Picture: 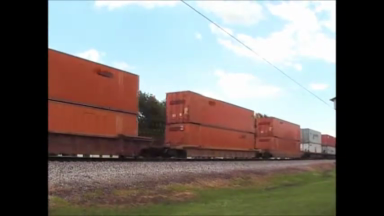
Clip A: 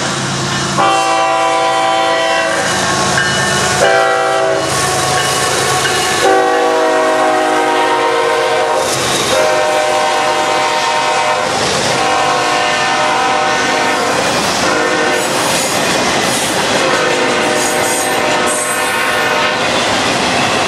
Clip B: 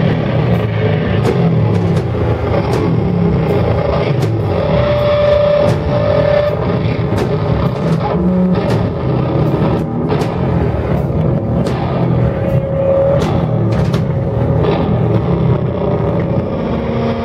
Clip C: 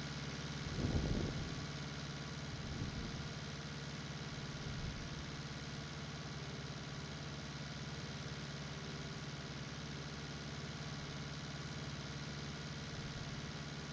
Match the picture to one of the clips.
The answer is A